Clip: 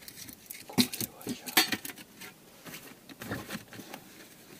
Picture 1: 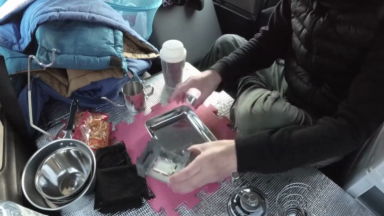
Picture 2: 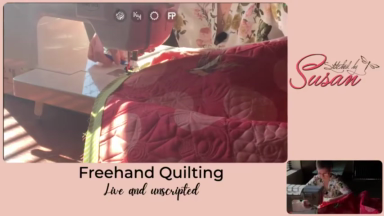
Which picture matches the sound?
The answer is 1